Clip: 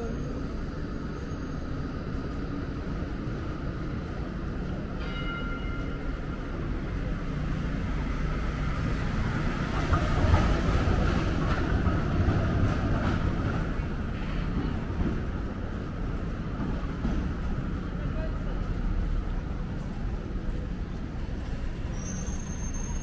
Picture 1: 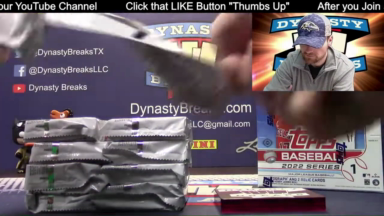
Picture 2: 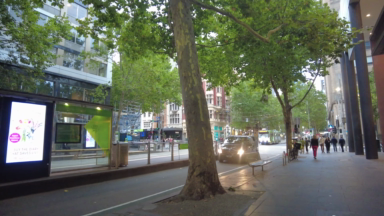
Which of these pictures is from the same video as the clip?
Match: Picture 2